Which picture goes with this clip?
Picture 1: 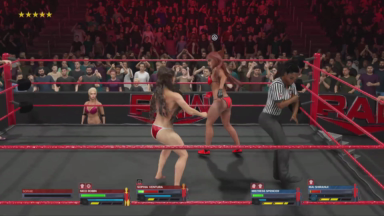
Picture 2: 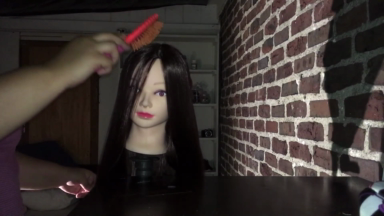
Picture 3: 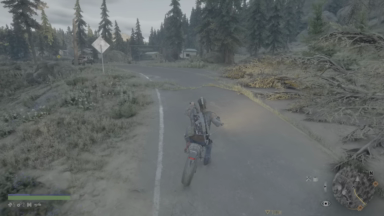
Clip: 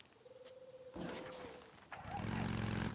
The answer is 3